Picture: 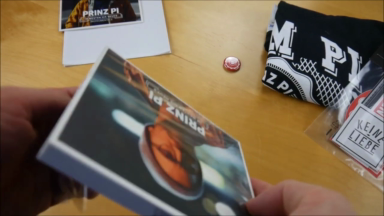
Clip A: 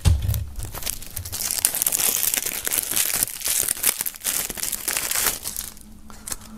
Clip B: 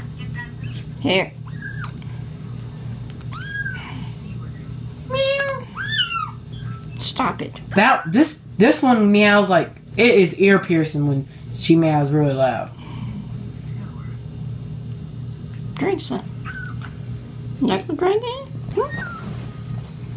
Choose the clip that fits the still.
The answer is A